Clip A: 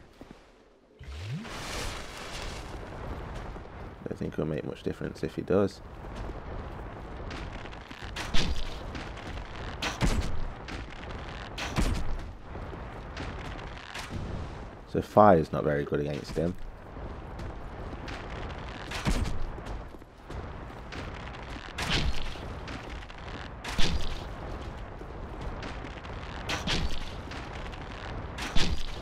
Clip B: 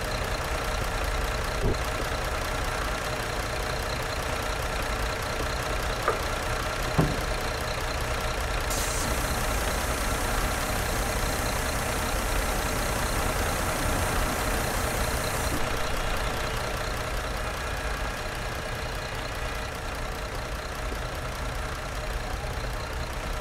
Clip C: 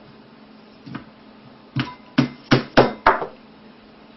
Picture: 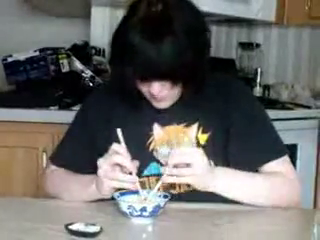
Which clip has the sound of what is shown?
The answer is C